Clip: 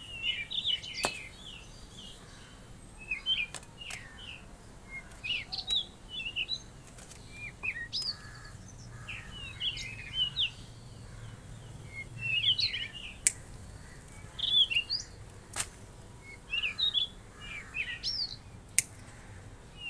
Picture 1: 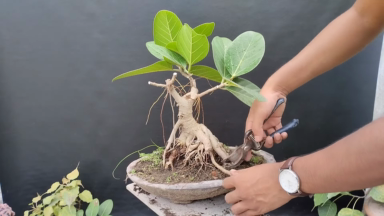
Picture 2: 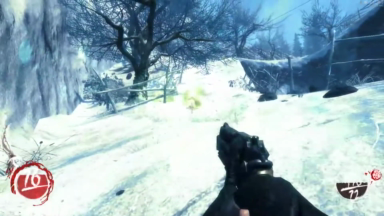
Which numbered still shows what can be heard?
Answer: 1